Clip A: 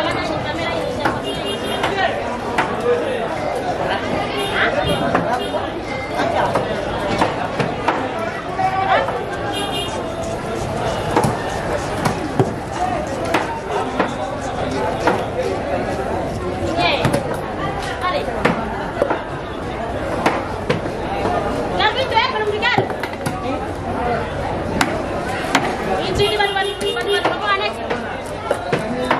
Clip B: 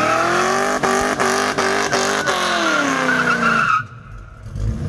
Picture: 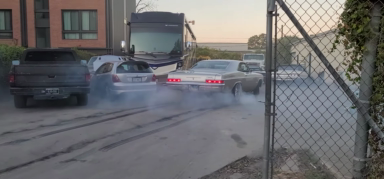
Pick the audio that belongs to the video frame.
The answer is B